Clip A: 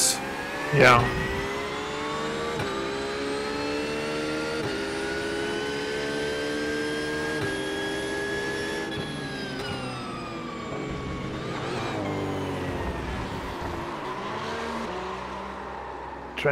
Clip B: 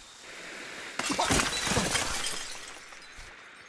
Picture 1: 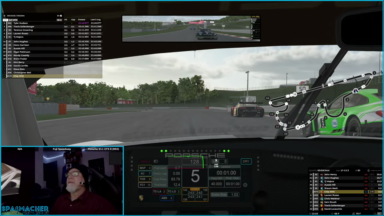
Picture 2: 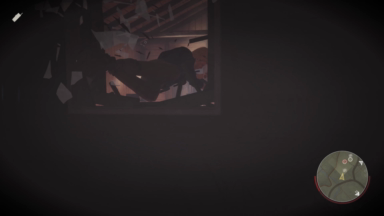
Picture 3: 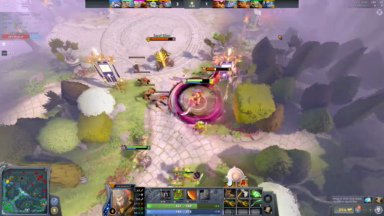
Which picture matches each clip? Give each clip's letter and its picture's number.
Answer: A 1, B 2